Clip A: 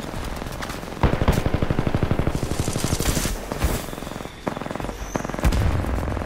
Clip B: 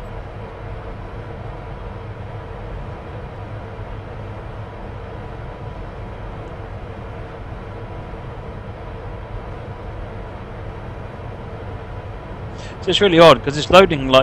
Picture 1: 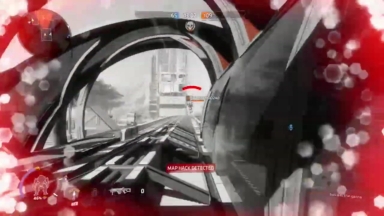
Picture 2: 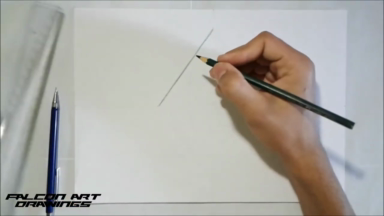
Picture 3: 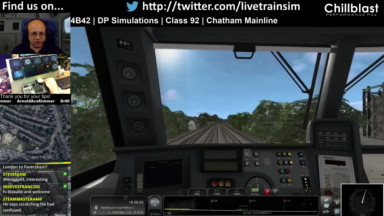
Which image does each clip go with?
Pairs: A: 1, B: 3